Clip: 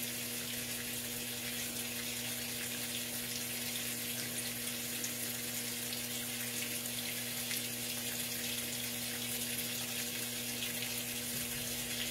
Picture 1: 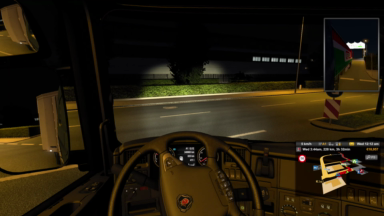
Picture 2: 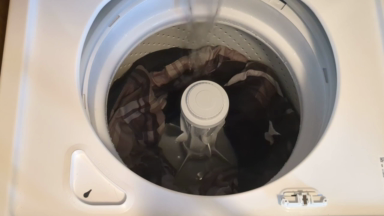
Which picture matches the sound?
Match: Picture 2